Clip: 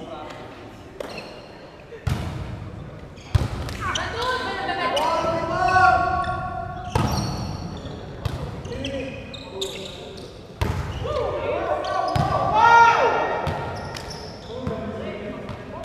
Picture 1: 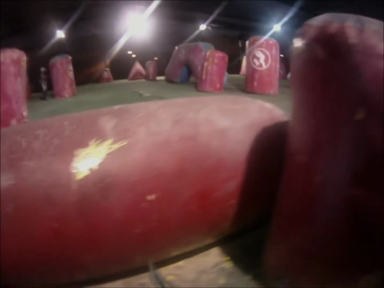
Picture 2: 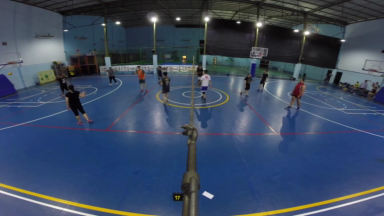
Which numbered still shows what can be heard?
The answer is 2